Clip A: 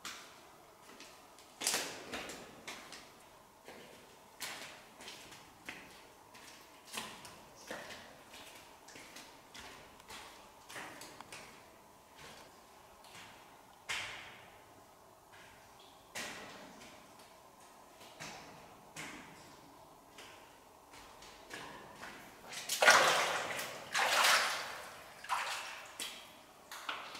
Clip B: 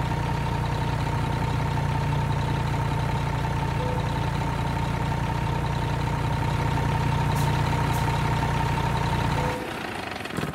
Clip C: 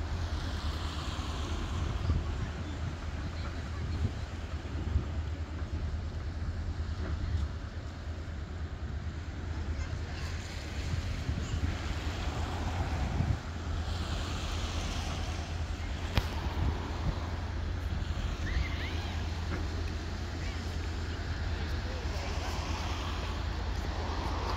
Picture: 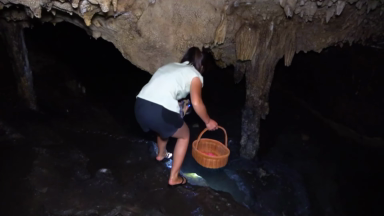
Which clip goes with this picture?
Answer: A